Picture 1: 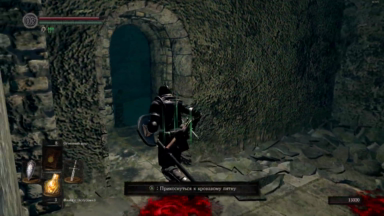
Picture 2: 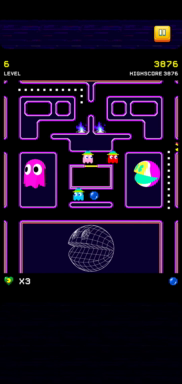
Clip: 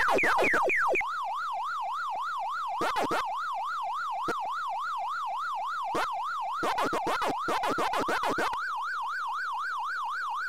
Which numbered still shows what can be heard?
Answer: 2